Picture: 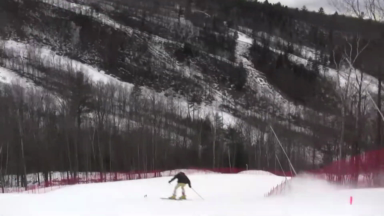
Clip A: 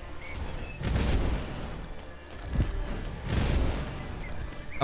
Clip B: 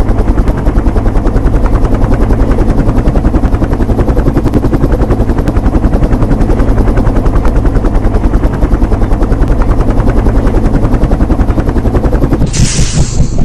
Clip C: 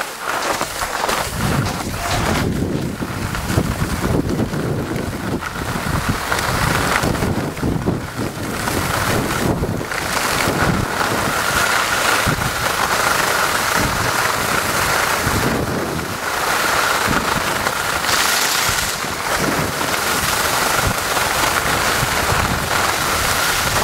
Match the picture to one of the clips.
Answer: C